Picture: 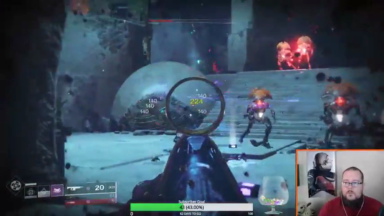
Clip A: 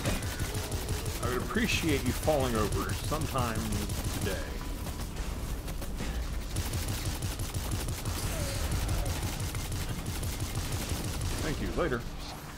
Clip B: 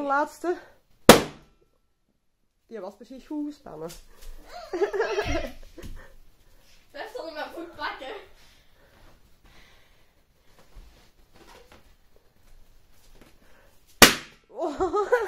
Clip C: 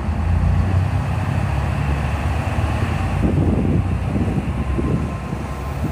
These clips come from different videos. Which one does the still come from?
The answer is A